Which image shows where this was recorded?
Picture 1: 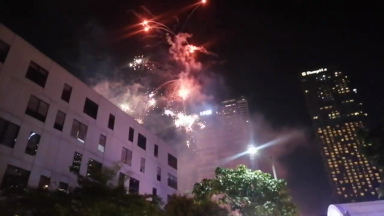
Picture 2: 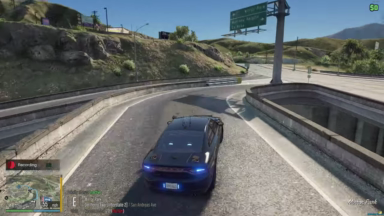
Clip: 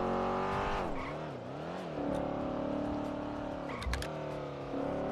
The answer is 2